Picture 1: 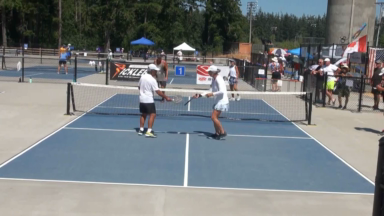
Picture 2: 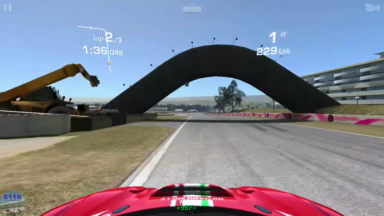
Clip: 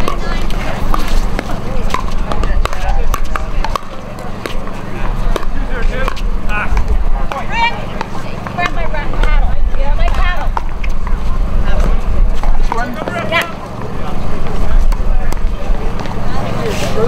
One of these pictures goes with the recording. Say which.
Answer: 1